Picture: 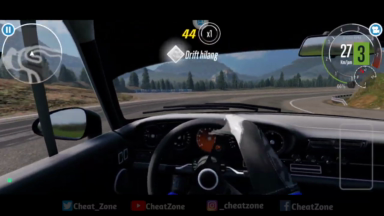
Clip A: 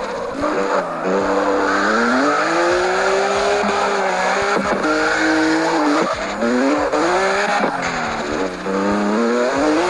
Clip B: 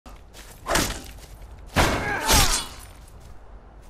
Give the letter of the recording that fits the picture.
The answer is A